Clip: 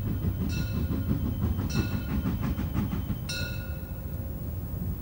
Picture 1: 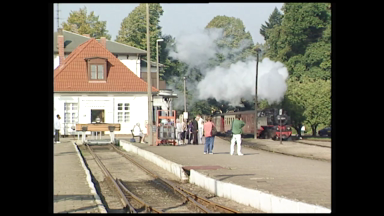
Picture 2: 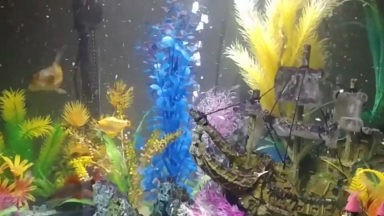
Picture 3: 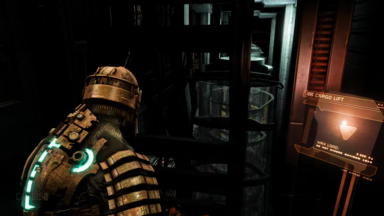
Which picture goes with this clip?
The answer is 1